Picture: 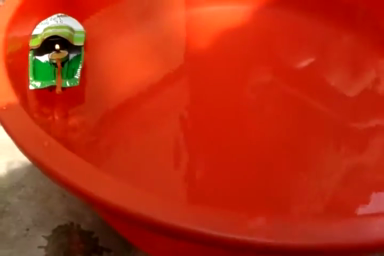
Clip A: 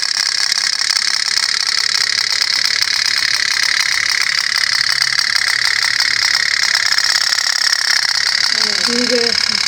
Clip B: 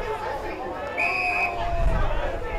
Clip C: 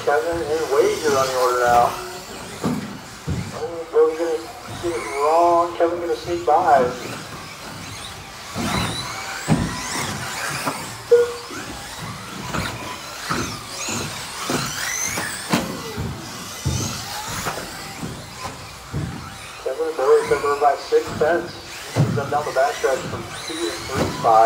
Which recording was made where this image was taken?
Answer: A